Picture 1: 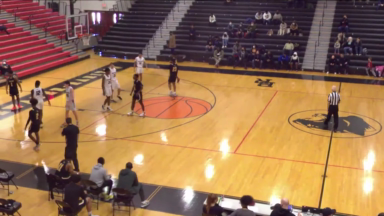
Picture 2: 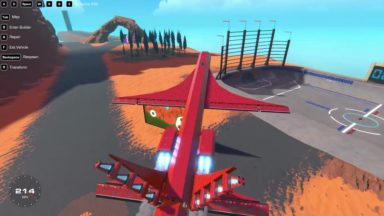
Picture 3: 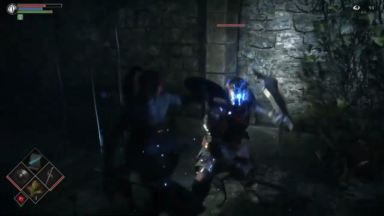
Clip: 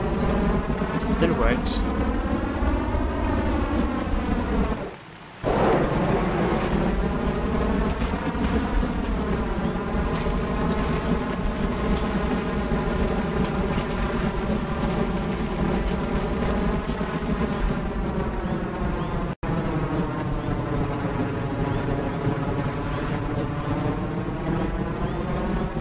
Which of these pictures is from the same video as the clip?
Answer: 2